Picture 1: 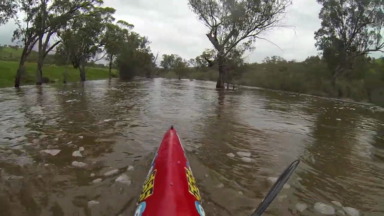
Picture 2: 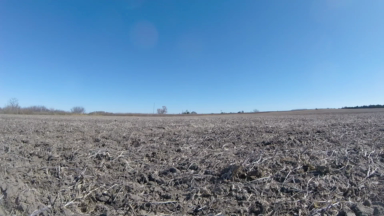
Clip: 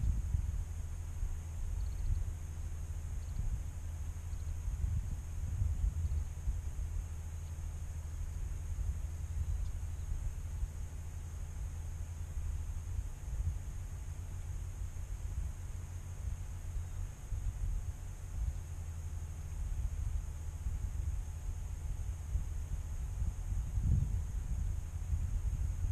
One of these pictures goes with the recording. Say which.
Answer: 2